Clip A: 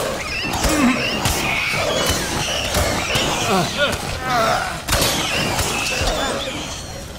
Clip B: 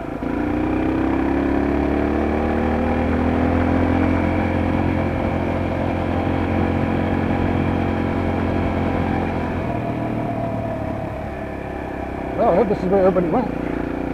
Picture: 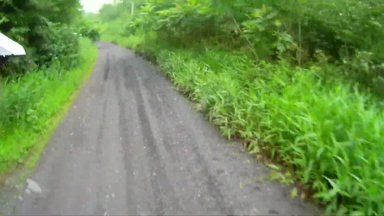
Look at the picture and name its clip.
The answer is B